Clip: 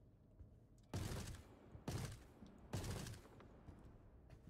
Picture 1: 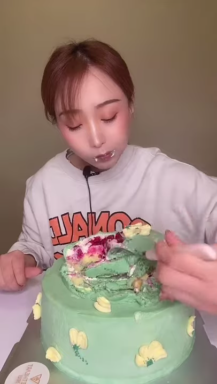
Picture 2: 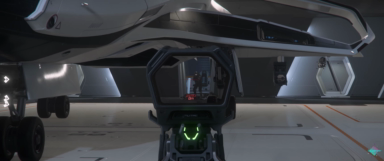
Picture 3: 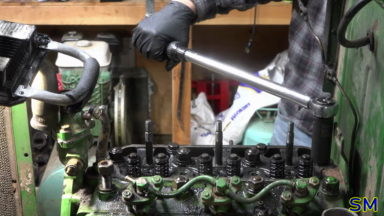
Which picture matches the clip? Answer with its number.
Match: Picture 2